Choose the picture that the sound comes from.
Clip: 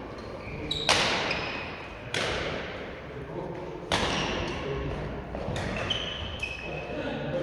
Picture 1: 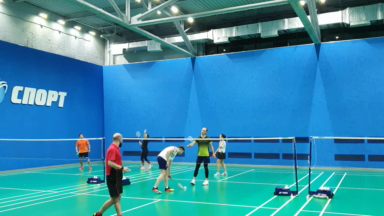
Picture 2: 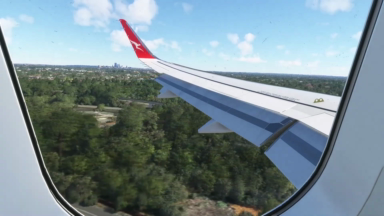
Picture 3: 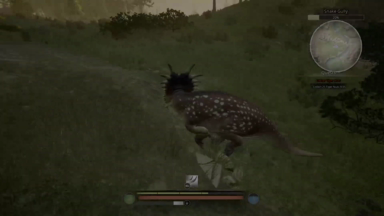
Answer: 1